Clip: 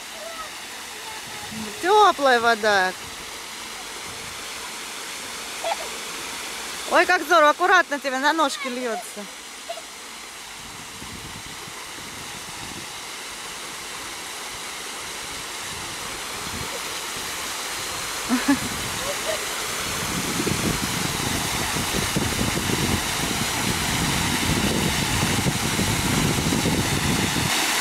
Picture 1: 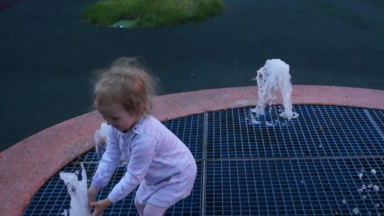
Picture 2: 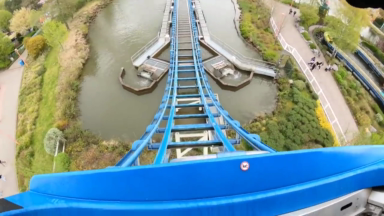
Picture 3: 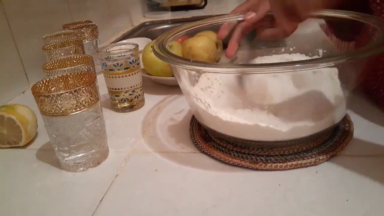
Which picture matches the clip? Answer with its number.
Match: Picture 1